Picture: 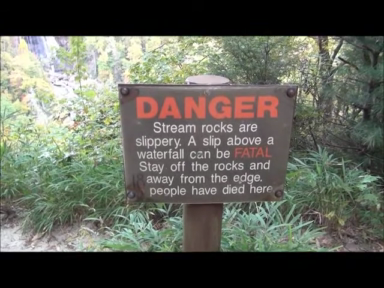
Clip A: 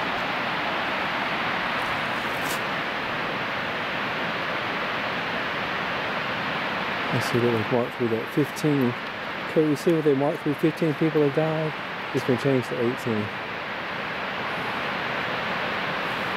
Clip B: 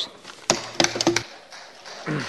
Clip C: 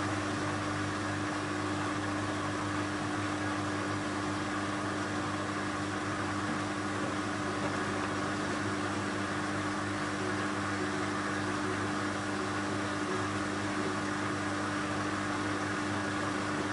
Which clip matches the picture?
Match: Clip A